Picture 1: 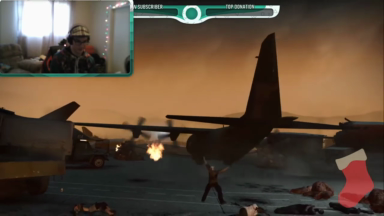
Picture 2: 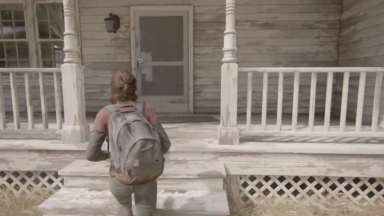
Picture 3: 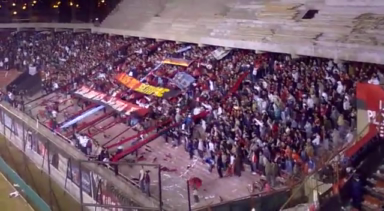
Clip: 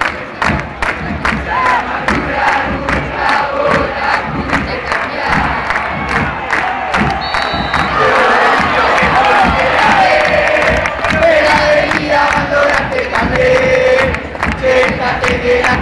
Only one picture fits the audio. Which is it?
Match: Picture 3